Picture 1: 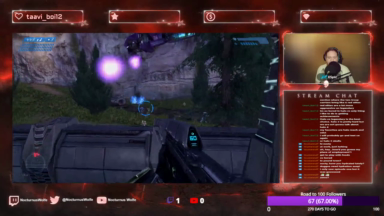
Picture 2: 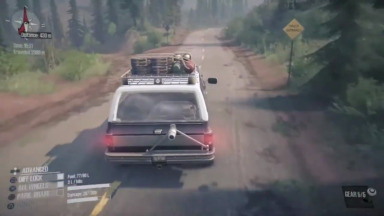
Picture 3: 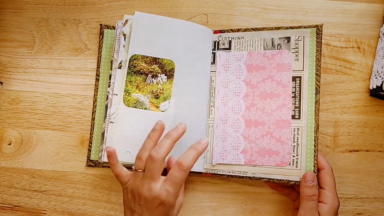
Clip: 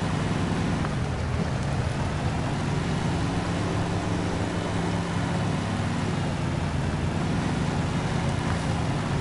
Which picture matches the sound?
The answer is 2